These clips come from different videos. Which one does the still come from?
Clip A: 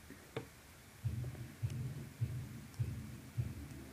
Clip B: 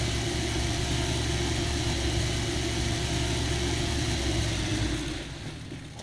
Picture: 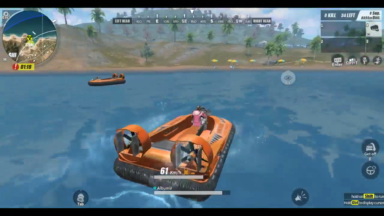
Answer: B